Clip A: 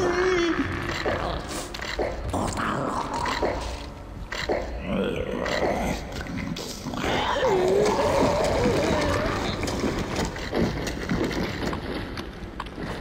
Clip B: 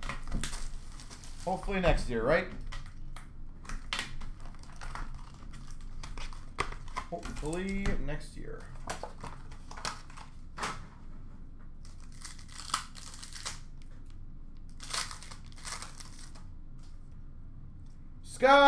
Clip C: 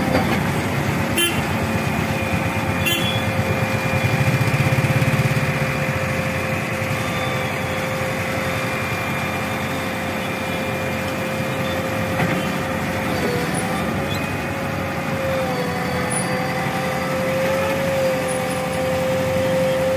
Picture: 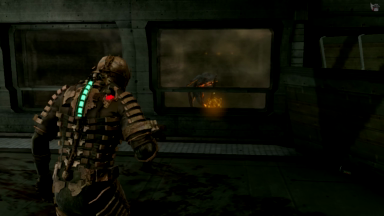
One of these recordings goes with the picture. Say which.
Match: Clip A